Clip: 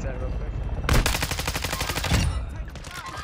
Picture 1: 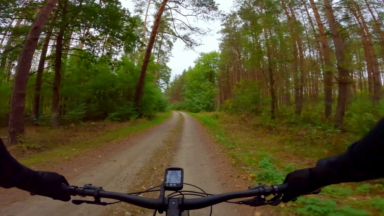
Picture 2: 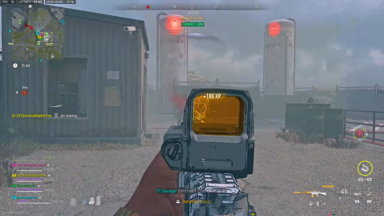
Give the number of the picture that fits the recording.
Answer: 2